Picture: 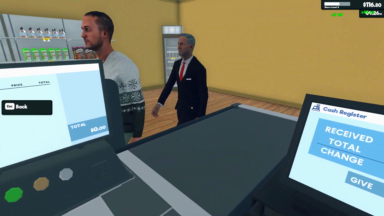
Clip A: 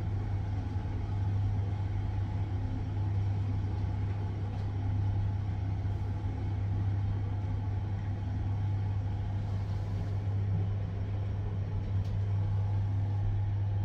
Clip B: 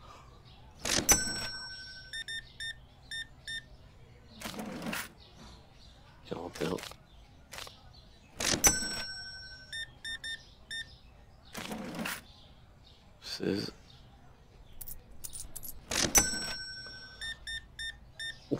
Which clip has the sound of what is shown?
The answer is B